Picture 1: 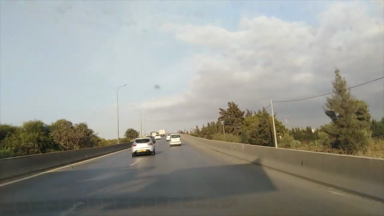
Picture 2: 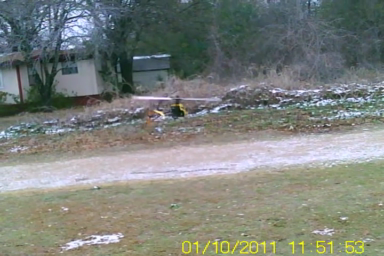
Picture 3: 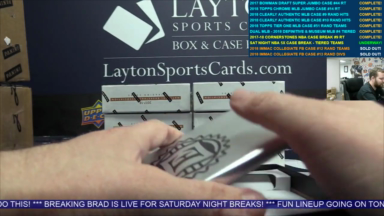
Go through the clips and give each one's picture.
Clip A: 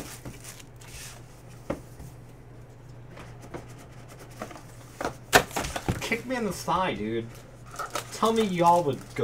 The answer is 3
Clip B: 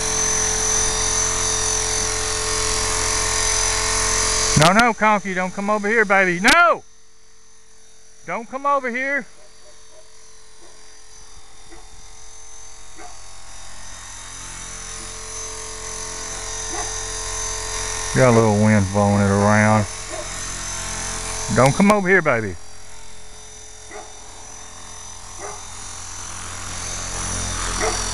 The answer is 2